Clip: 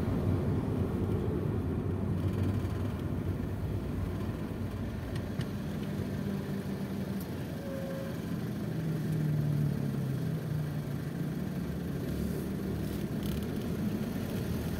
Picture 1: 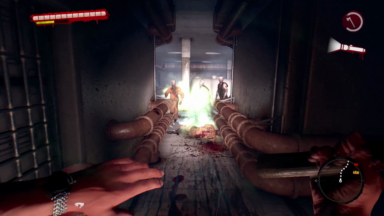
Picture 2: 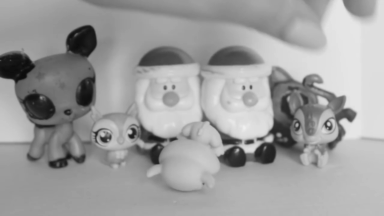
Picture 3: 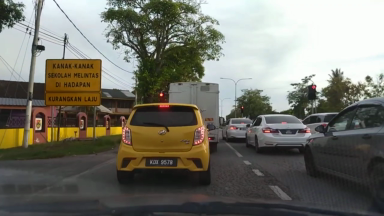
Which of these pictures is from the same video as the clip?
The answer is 3